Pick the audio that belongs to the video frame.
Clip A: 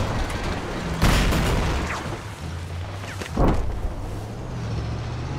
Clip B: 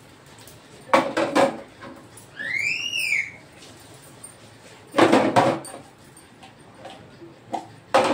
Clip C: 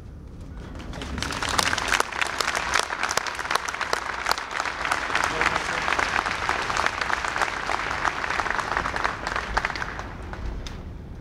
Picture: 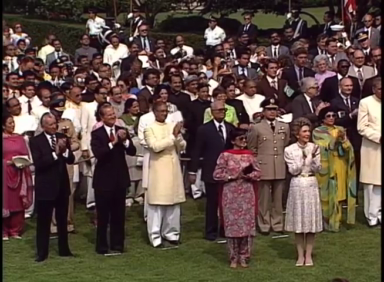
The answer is C